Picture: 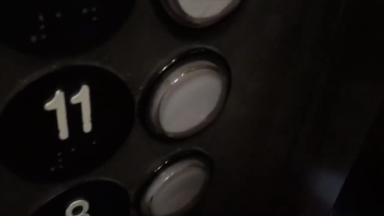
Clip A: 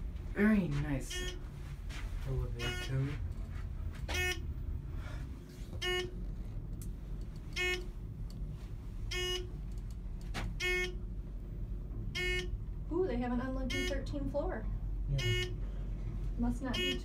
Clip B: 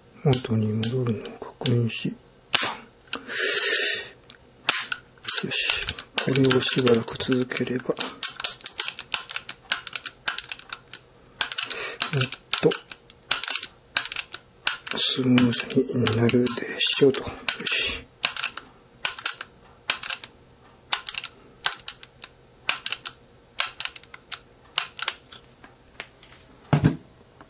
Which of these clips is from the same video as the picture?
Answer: A